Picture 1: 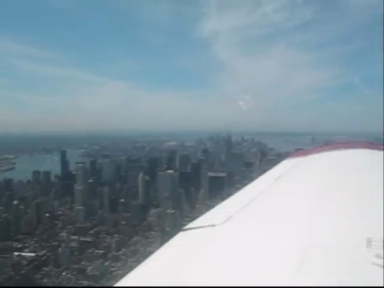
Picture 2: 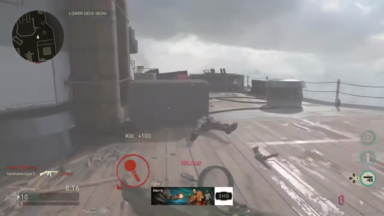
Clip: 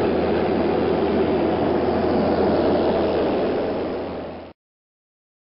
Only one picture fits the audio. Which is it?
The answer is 1